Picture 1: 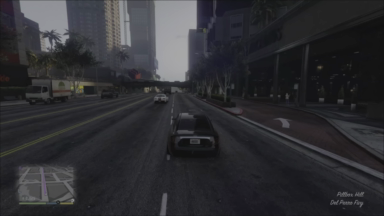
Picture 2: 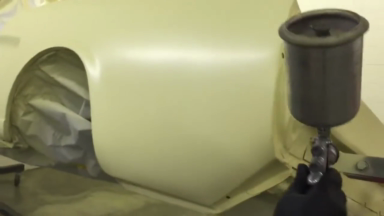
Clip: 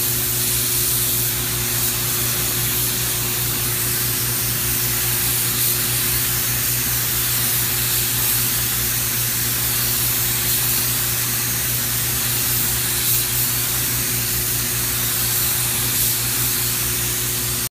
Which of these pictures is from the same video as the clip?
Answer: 2